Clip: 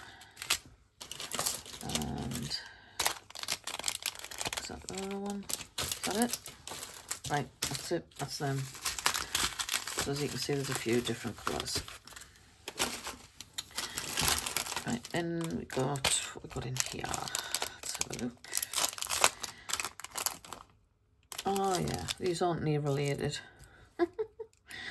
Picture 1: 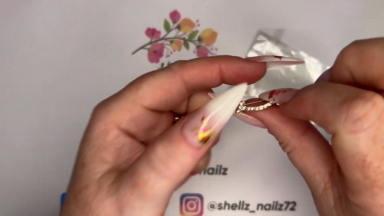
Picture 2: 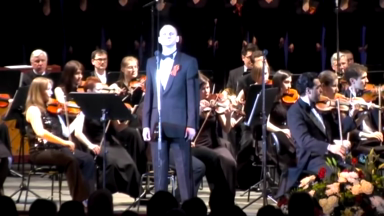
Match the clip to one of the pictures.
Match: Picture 1